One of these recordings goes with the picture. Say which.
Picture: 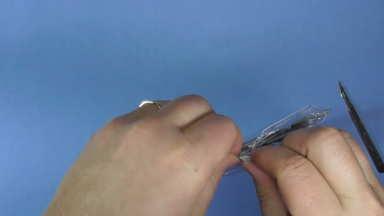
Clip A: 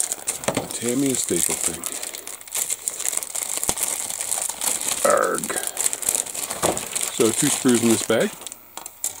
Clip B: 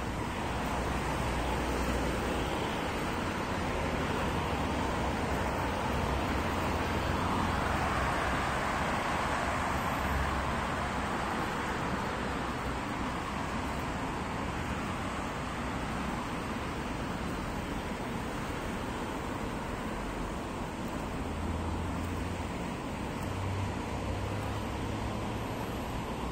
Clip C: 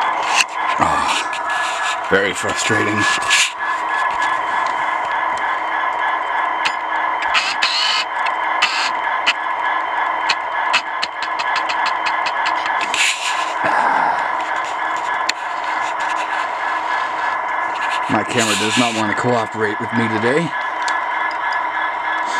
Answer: A